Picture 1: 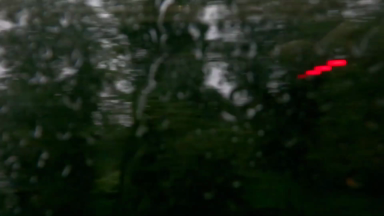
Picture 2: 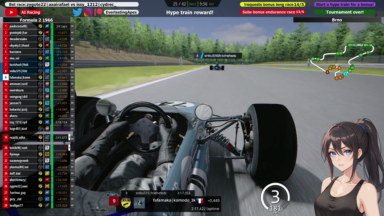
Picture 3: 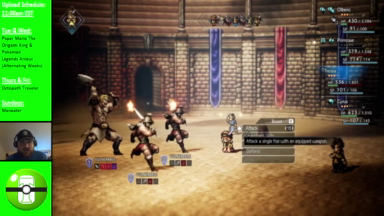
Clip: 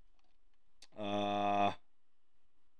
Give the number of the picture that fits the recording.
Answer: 3